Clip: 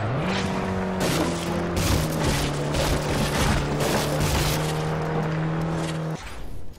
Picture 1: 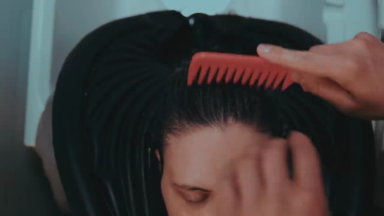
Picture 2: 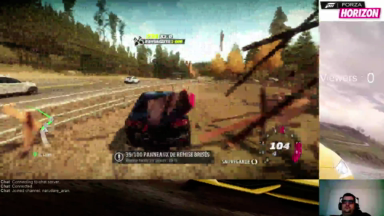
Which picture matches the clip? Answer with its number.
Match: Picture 2